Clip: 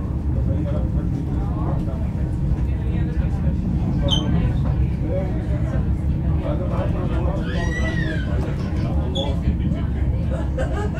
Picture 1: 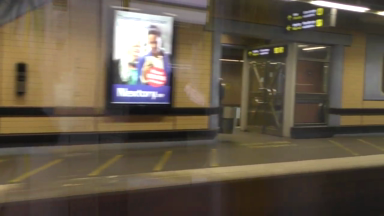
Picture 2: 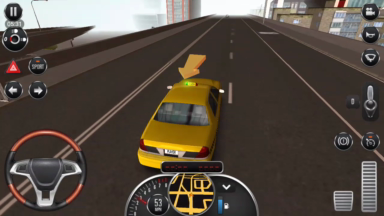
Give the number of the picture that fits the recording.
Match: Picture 1